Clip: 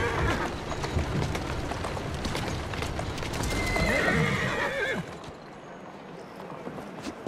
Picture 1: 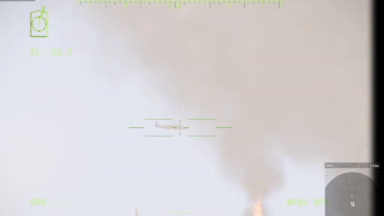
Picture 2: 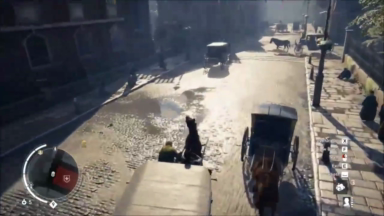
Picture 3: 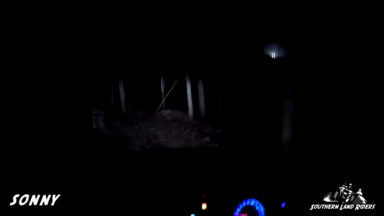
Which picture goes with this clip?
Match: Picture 2